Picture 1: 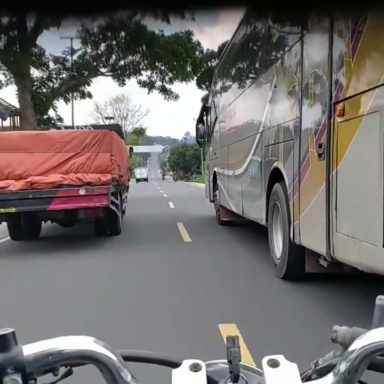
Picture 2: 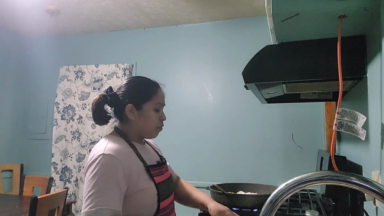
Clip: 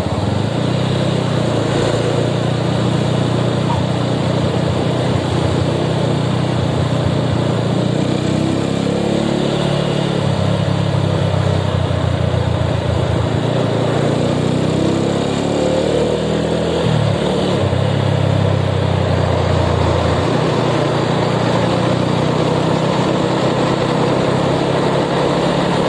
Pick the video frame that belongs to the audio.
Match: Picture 1